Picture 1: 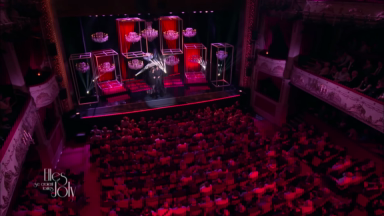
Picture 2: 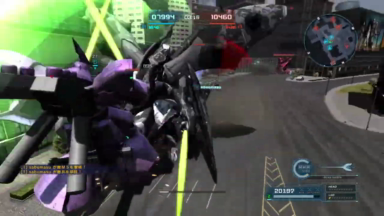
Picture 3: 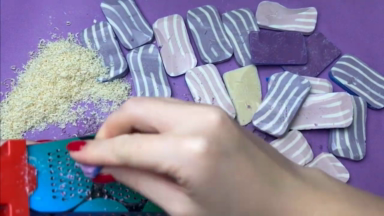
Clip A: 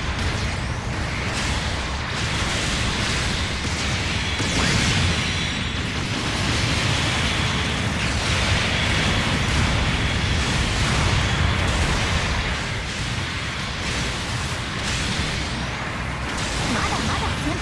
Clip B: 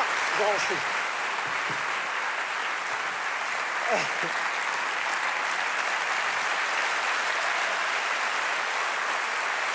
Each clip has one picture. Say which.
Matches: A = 2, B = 1